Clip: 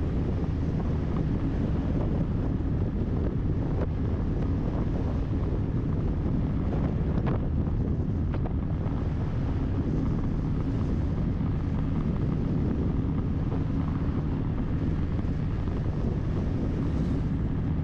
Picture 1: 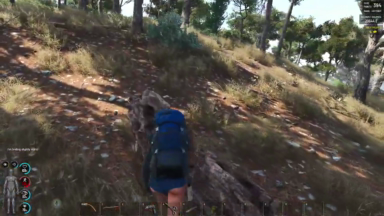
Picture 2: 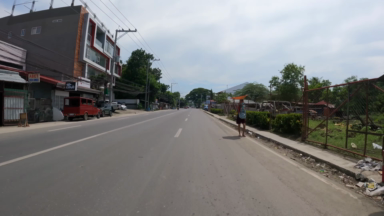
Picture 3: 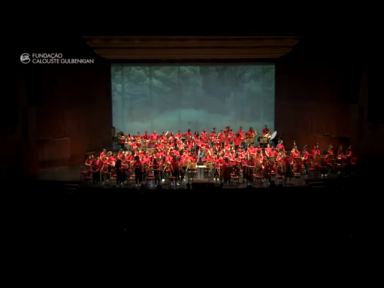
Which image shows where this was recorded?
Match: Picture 2